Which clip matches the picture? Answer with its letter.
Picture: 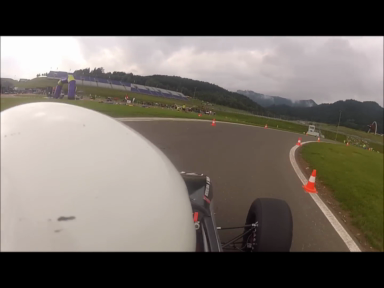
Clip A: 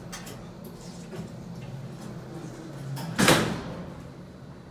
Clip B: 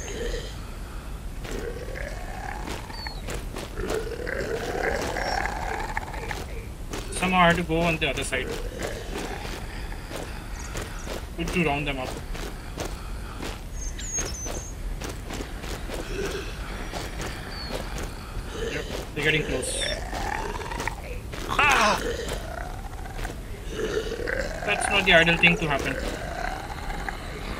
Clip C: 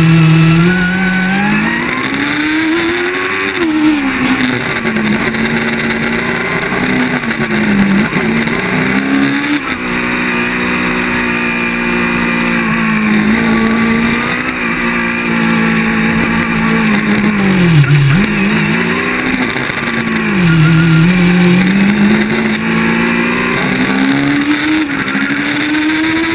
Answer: C